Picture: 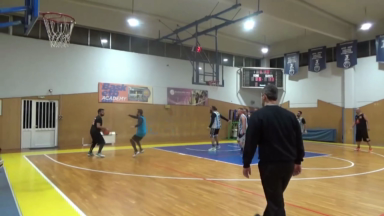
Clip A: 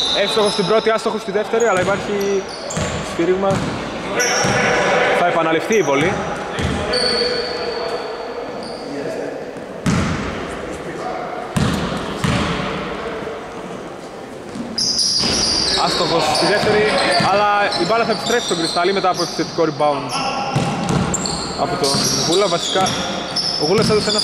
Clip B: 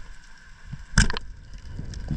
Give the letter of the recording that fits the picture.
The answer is A